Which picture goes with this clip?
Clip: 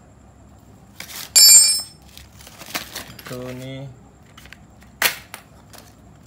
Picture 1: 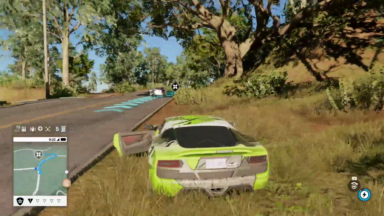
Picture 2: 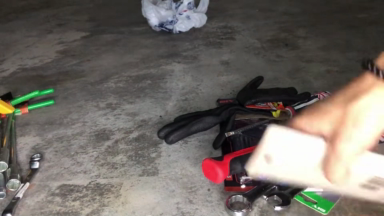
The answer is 2